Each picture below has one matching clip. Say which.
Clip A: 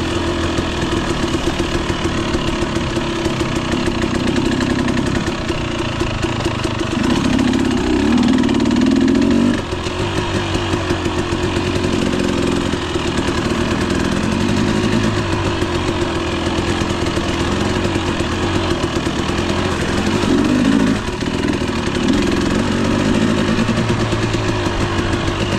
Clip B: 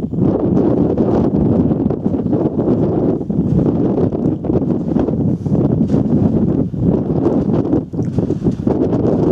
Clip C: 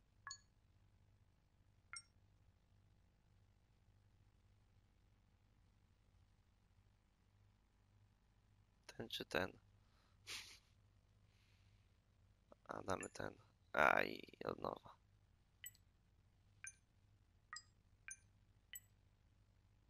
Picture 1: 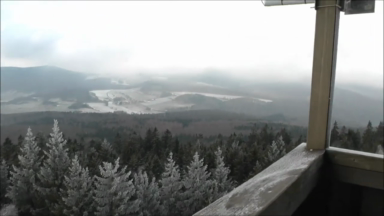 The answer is B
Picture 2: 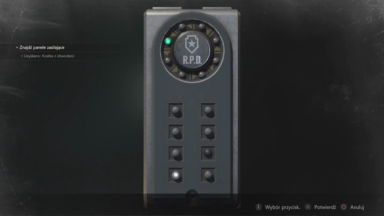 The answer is C